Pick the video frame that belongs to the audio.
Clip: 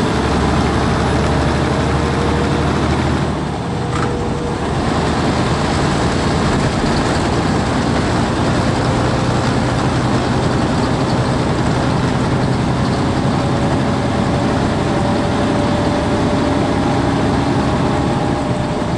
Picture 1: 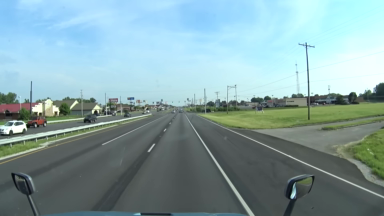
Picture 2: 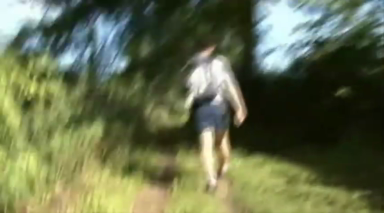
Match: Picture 1